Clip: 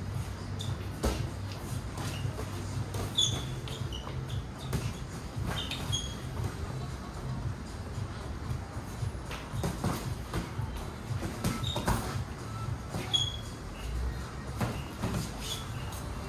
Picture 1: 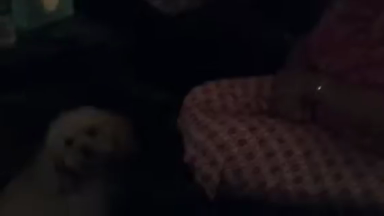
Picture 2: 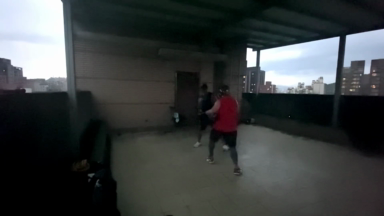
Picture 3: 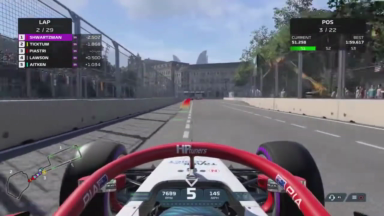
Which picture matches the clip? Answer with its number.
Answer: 2